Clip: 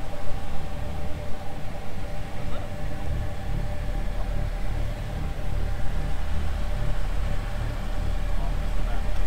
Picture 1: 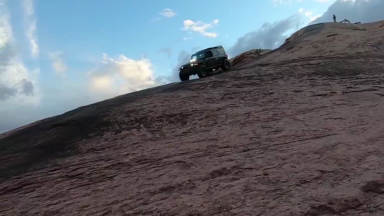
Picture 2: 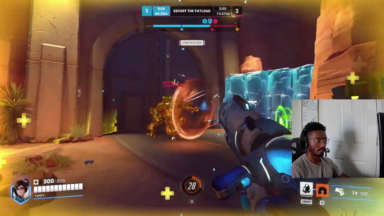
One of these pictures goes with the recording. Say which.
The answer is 1